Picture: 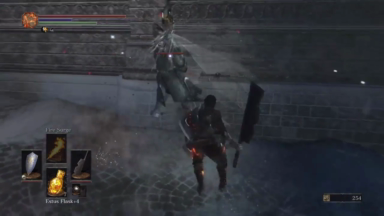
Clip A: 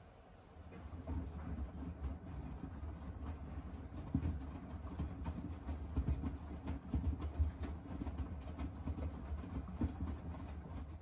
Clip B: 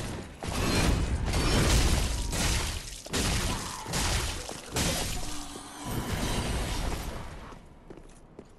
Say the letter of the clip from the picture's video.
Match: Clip B